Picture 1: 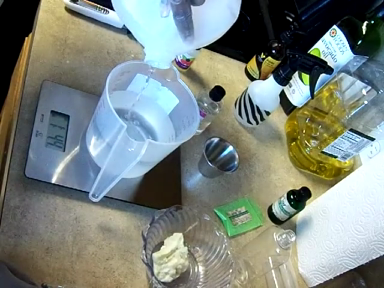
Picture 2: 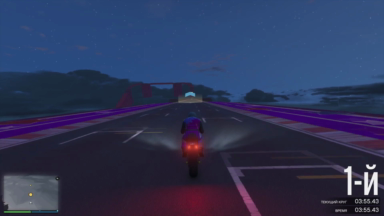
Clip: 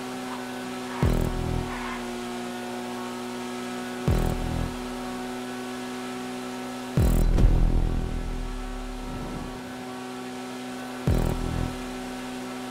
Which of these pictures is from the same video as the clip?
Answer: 2